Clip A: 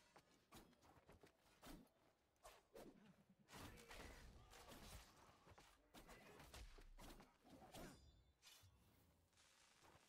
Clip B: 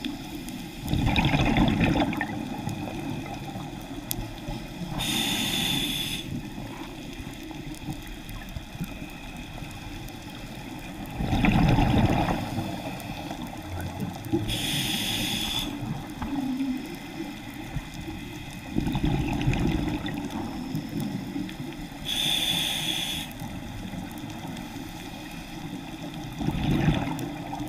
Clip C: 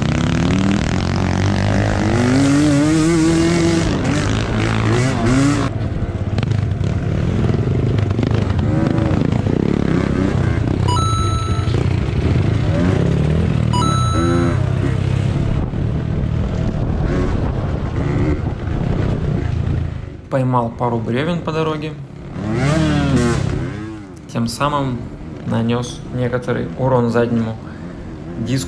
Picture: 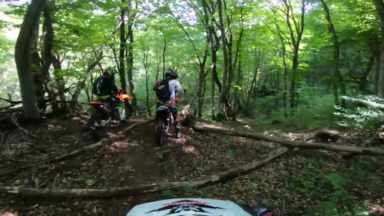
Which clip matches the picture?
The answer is C